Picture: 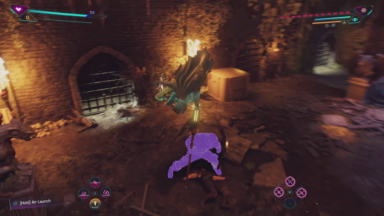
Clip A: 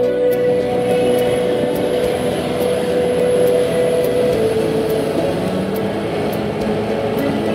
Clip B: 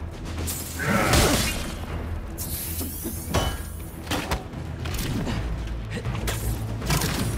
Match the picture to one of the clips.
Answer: B